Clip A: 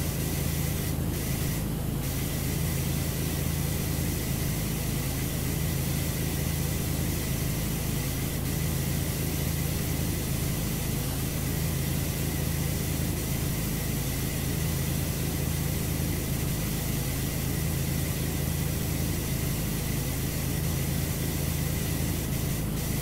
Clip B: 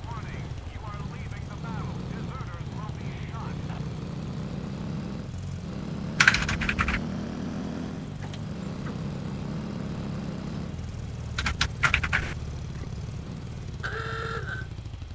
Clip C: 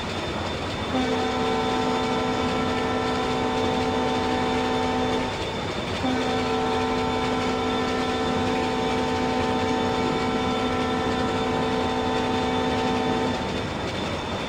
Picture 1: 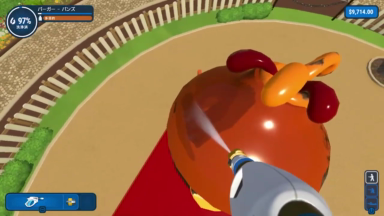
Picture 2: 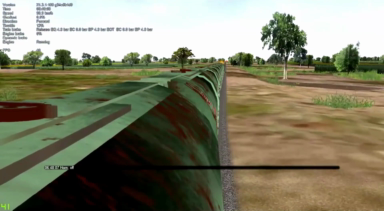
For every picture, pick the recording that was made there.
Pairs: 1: A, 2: C